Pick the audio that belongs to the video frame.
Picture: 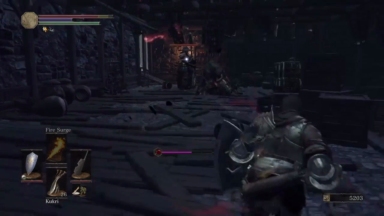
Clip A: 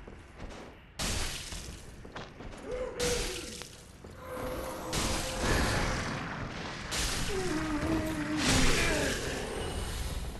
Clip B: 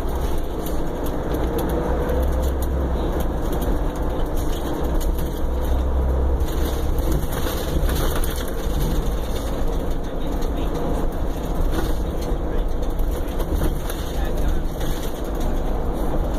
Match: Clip A